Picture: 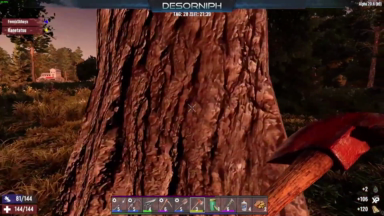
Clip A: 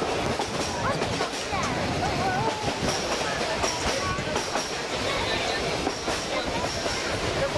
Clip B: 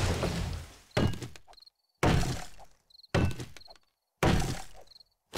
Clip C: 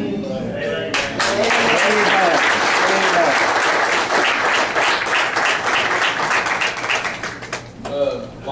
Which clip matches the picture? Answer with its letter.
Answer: B